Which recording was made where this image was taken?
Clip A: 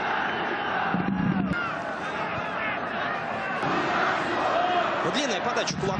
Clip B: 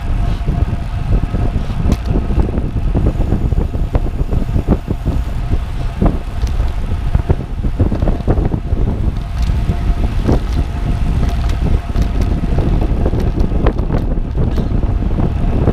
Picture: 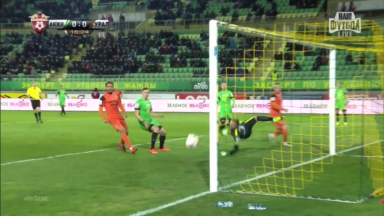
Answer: A